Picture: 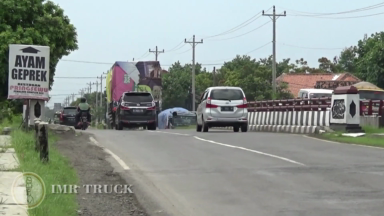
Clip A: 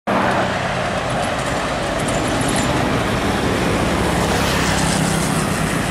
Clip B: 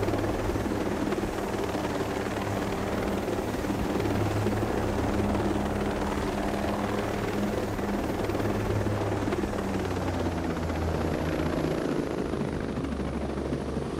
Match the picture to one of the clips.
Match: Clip A